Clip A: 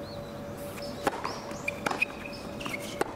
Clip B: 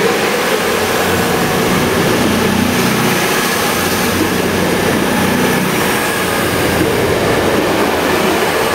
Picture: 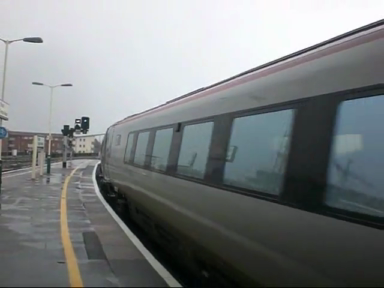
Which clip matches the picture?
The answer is B